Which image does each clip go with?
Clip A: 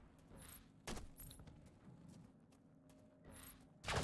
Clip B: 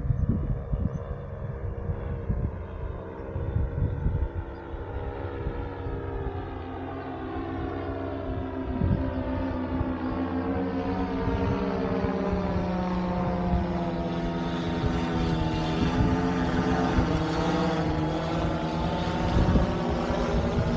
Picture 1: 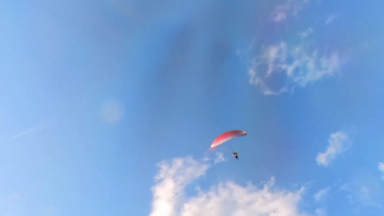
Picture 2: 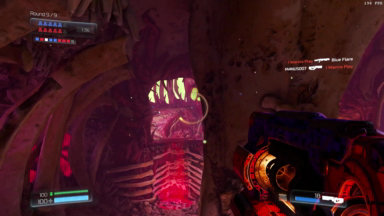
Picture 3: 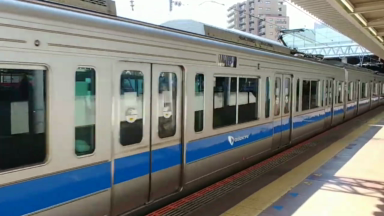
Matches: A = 2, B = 1